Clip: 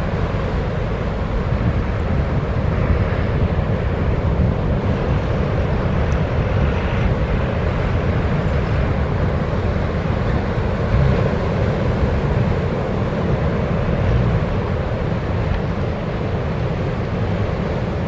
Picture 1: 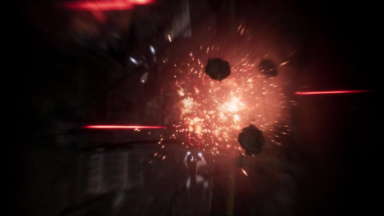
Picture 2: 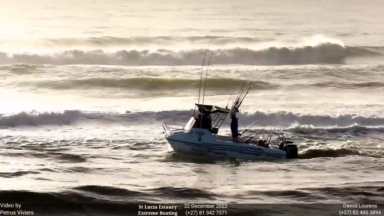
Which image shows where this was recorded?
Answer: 2